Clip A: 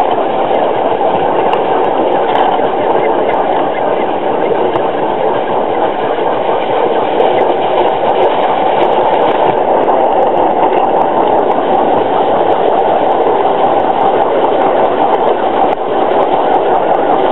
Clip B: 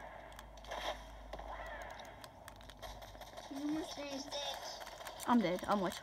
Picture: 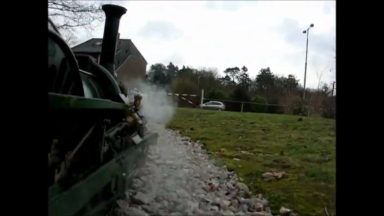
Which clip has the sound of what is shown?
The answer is A